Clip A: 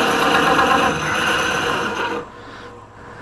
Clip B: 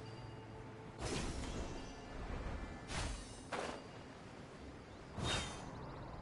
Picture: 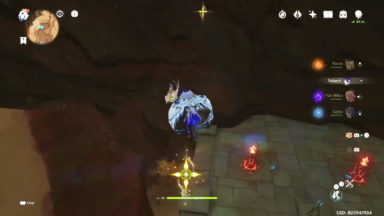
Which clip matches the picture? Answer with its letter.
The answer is B